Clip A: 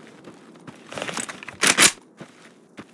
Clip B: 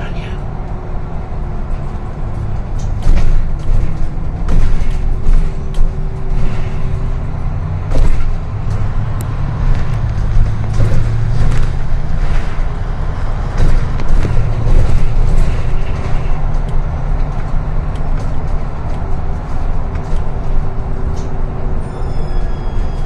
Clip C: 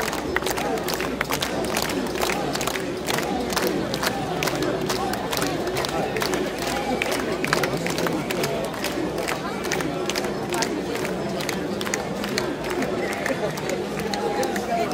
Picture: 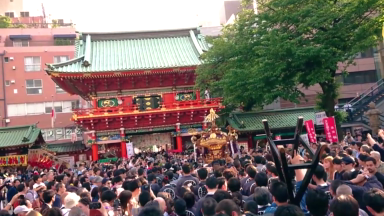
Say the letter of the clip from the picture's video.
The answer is C